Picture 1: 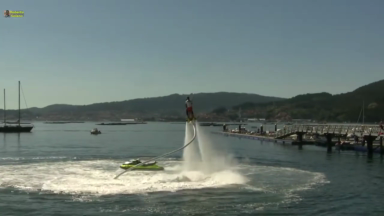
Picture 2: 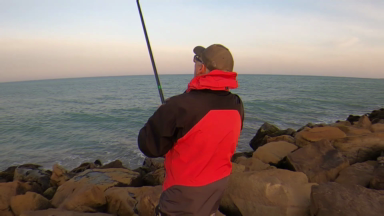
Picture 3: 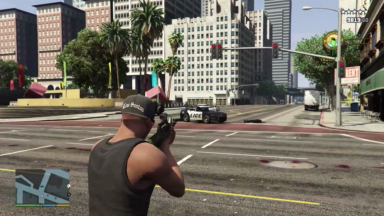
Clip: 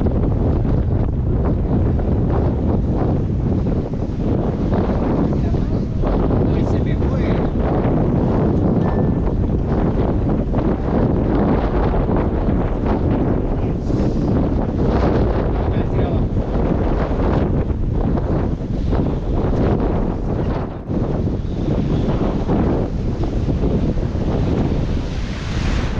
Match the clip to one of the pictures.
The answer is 2